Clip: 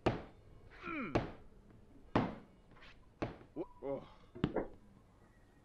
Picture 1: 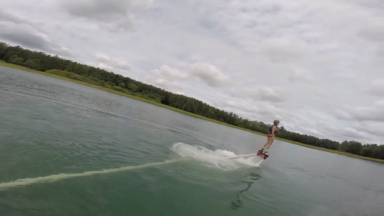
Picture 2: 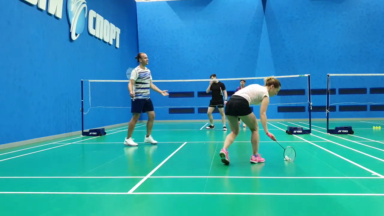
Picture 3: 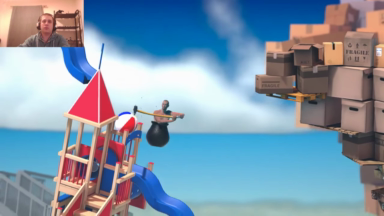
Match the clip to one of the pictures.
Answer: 3